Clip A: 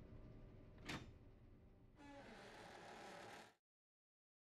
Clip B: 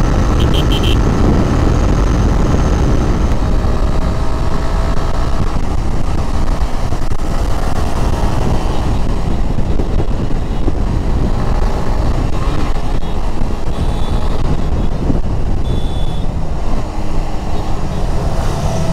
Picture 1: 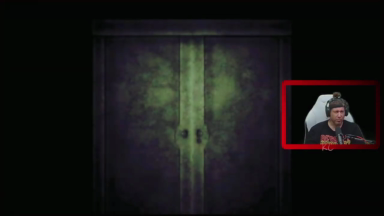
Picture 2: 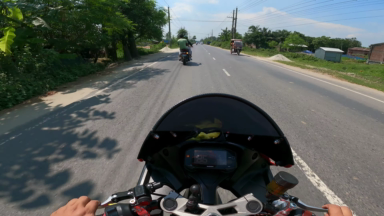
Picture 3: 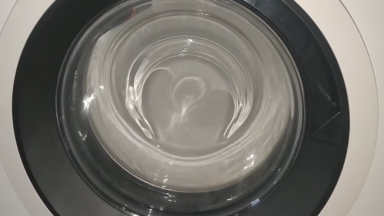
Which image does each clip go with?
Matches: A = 1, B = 2